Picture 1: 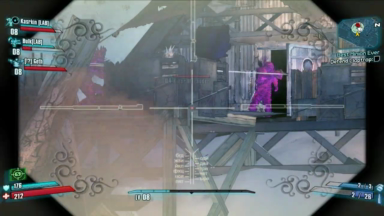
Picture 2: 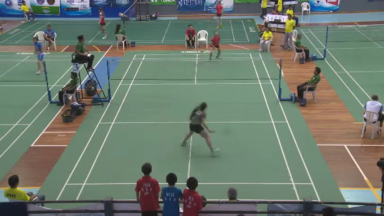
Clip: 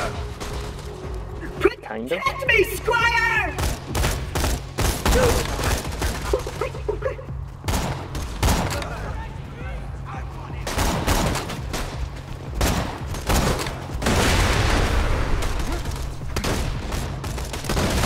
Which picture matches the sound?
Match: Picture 1